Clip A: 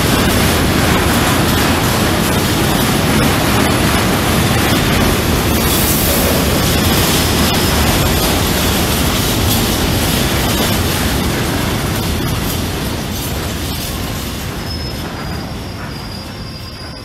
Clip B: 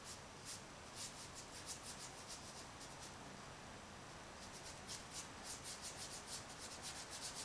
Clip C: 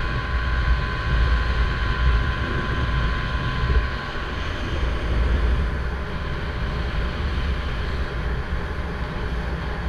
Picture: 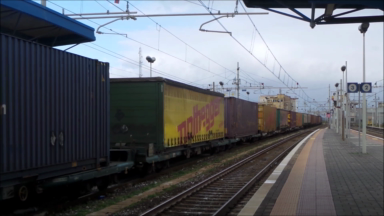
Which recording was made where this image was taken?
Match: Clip A